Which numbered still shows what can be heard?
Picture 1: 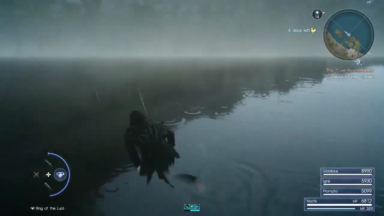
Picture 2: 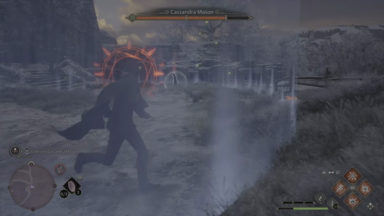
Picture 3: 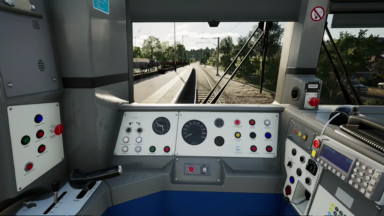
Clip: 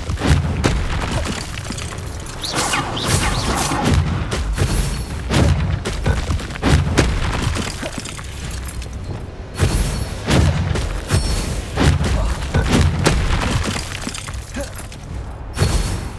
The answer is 2